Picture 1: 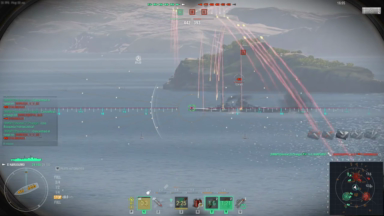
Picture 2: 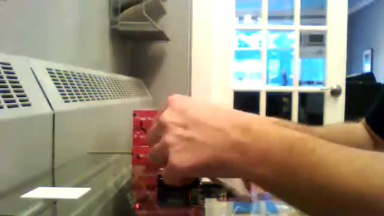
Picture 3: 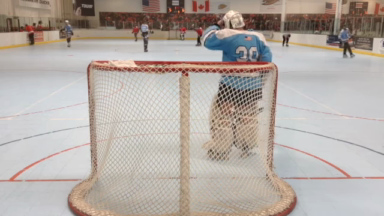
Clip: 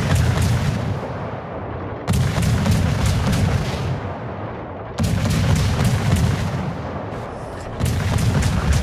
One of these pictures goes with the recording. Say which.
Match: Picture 1